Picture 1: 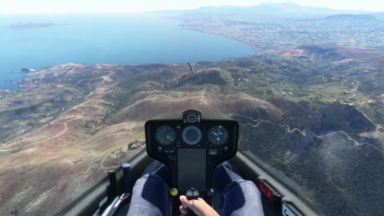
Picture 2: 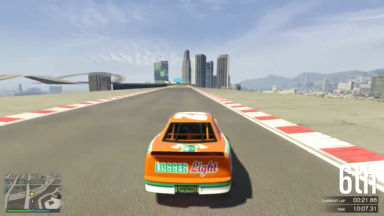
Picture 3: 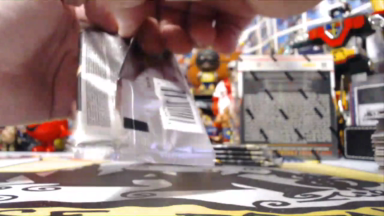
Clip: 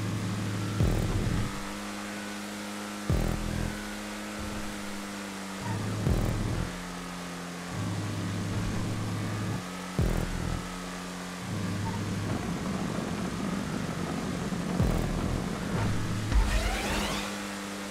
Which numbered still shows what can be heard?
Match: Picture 2